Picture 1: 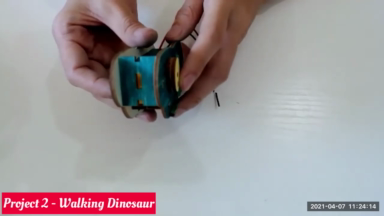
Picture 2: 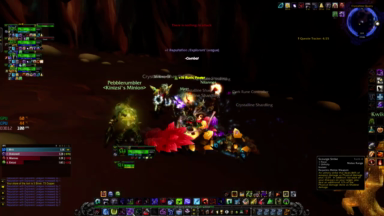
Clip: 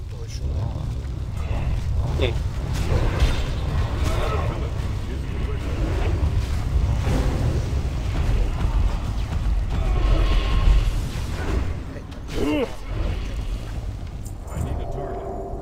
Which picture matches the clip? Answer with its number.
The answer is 2